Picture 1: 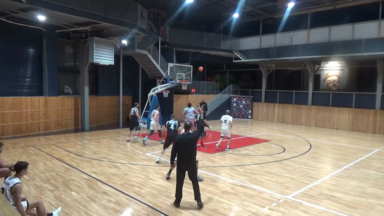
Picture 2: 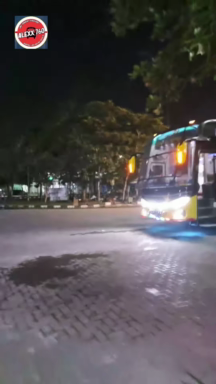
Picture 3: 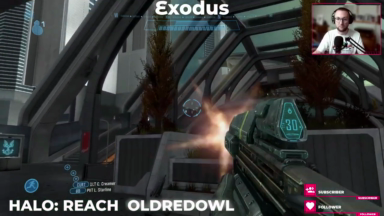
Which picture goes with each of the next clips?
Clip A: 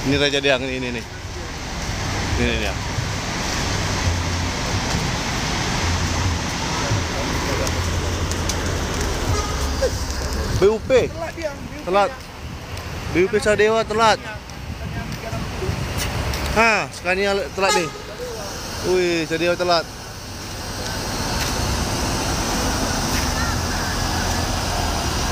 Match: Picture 2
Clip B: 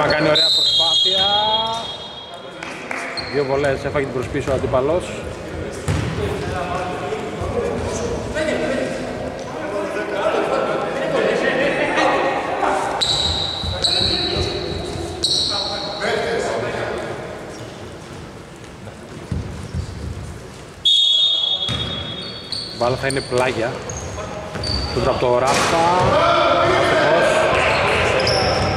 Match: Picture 1